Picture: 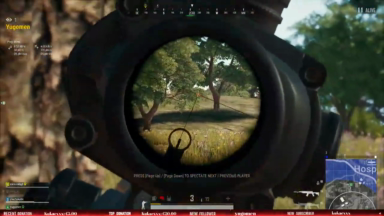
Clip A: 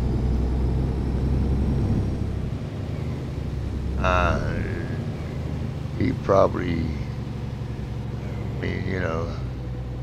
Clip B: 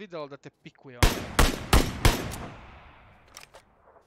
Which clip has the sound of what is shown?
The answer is B